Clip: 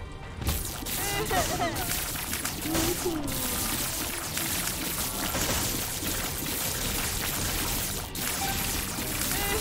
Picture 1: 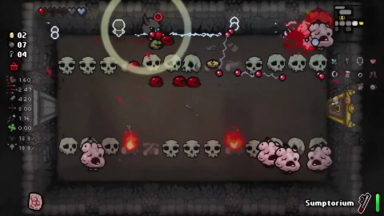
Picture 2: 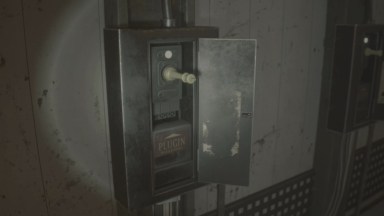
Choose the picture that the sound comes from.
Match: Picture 1